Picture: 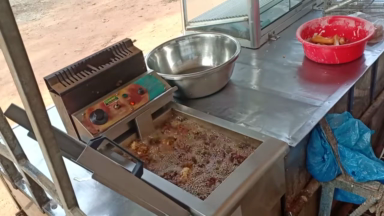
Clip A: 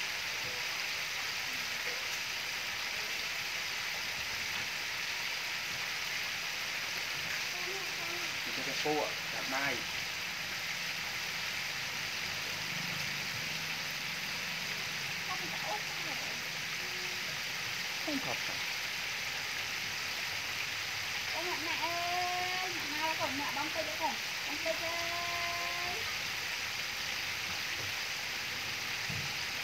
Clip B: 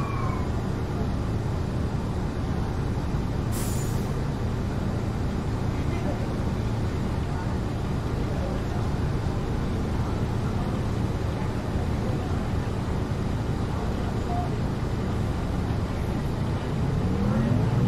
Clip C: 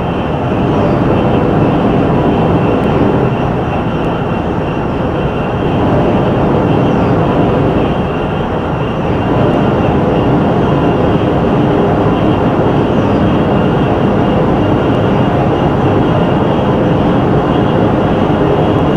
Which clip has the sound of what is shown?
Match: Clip A